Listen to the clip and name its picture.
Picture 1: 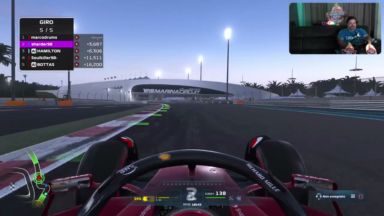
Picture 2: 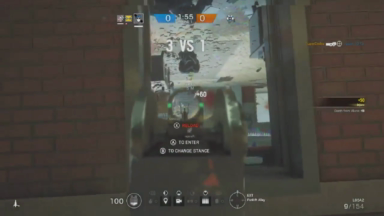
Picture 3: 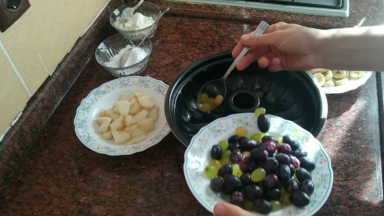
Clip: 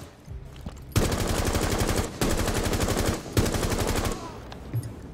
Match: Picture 2